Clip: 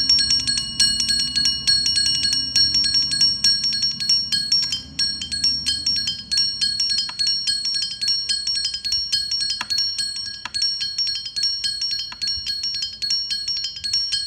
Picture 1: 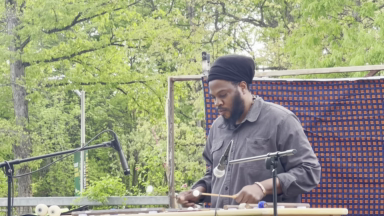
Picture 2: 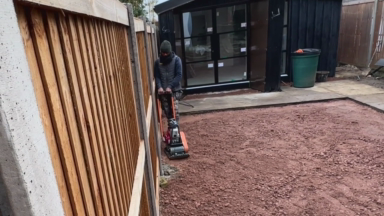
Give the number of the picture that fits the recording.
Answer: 1